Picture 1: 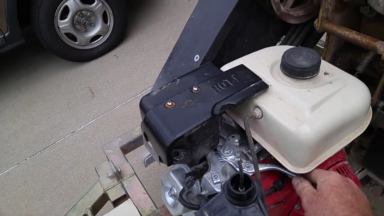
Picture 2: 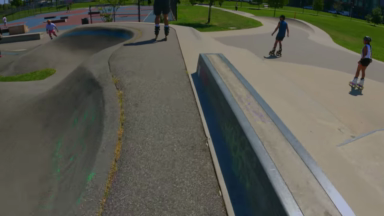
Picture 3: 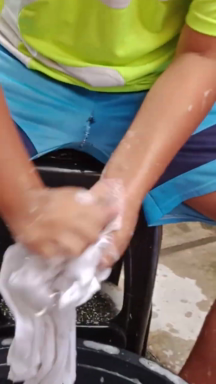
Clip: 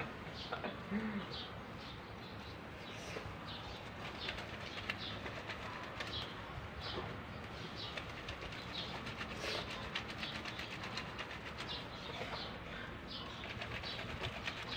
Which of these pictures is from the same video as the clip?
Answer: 3